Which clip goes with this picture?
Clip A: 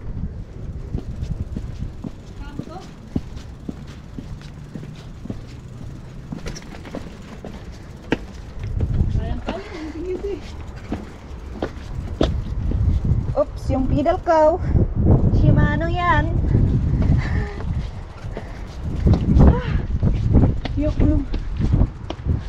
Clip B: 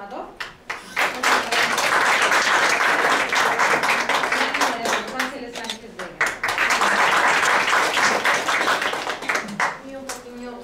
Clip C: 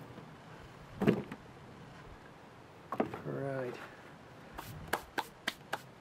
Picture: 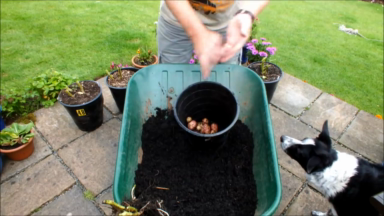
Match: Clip C